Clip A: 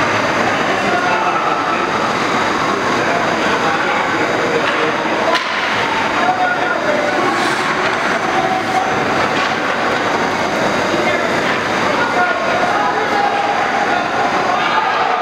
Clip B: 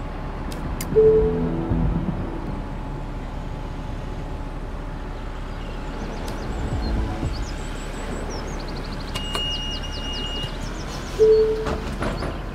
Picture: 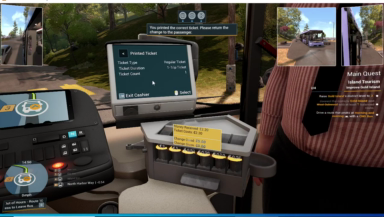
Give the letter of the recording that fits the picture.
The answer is B